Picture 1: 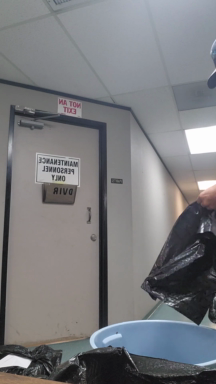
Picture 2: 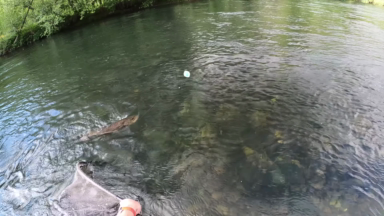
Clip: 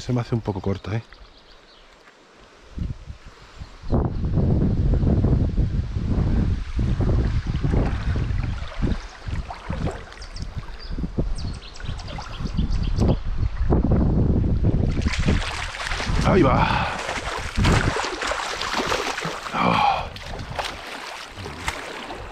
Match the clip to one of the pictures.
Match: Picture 2